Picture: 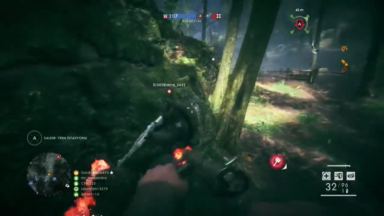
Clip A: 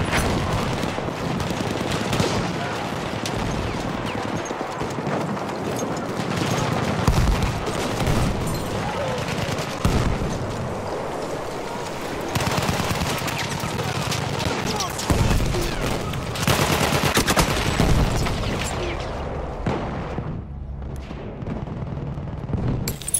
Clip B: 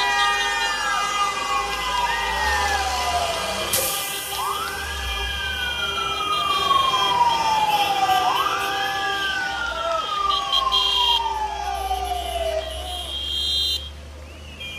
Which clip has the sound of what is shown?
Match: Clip A